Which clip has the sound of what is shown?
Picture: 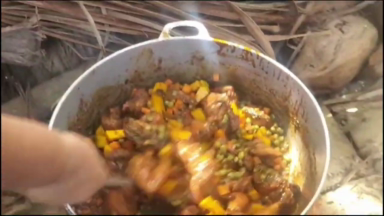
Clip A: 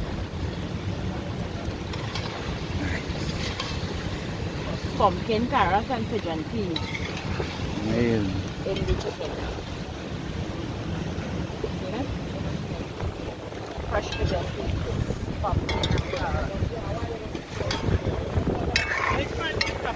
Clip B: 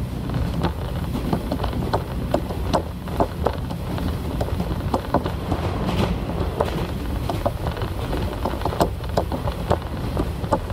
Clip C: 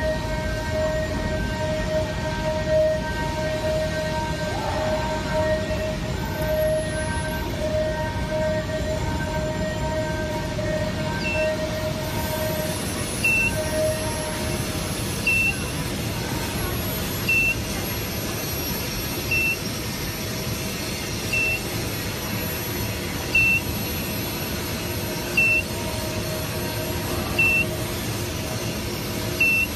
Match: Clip A